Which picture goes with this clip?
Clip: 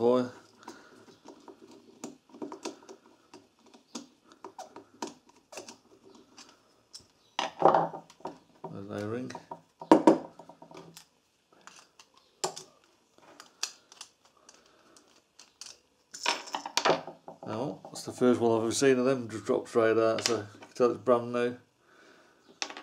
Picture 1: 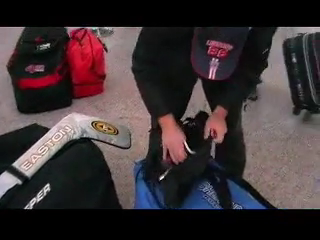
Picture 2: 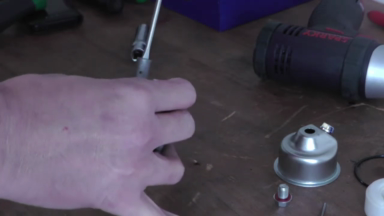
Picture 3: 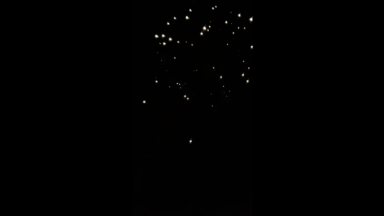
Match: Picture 2